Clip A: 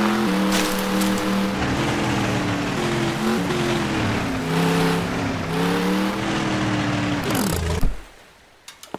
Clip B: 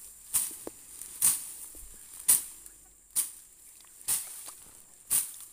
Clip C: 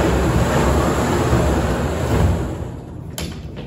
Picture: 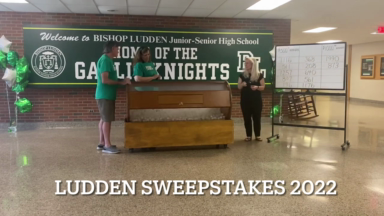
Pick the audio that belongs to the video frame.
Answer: C